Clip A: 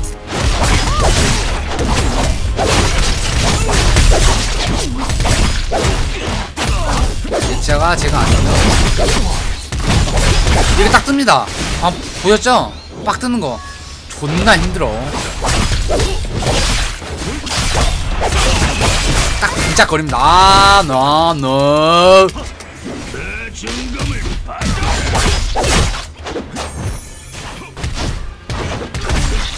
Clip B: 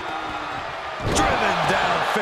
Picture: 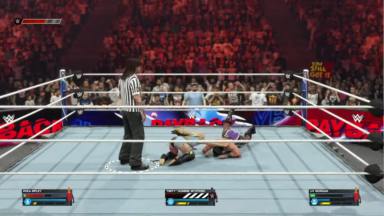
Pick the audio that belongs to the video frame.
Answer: B